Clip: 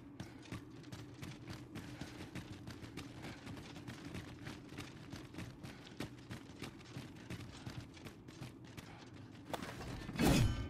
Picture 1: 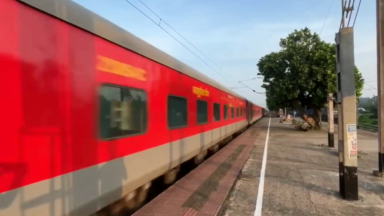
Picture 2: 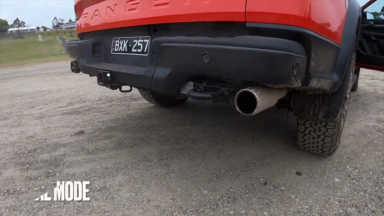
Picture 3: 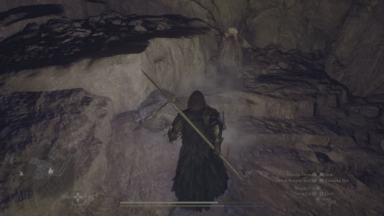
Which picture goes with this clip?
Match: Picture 3